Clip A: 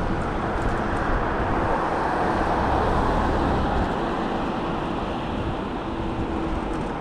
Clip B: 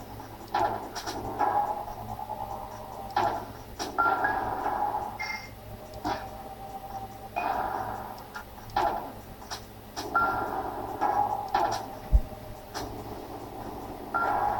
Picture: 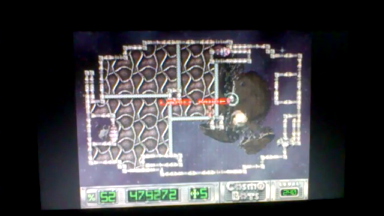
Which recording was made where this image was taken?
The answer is B